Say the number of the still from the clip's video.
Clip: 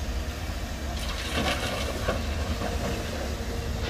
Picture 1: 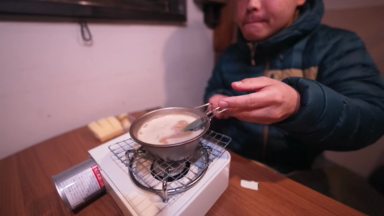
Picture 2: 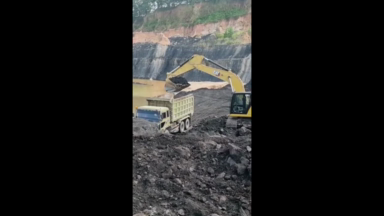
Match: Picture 2